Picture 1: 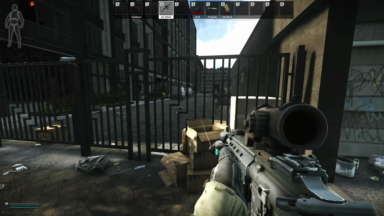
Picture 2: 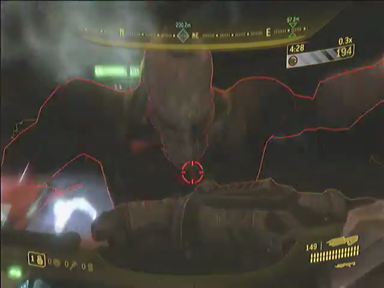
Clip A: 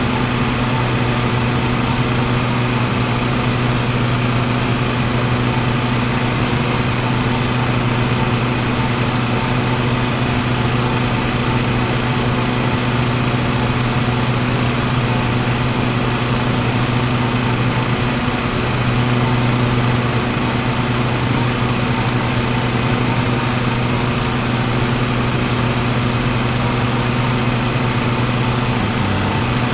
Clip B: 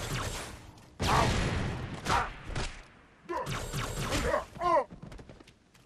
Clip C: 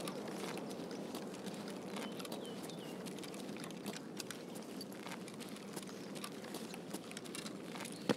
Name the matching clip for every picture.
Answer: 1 C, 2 B